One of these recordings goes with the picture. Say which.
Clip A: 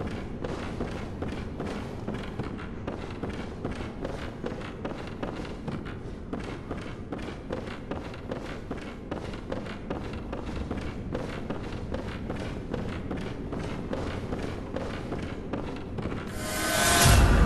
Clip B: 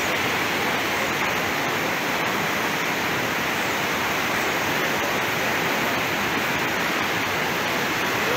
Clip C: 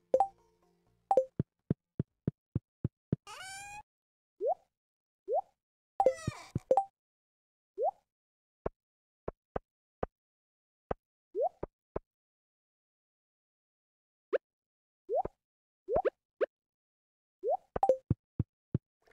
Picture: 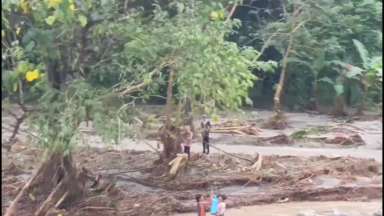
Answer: B